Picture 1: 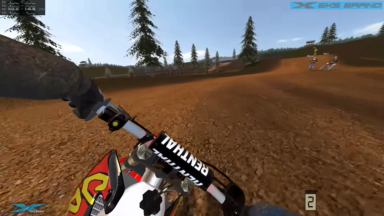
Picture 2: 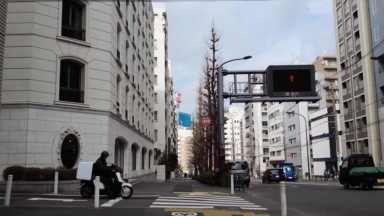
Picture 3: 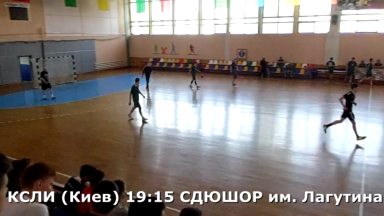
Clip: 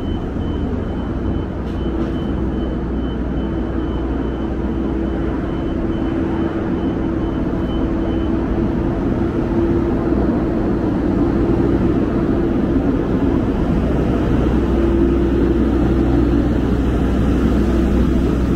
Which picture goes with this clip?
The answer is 2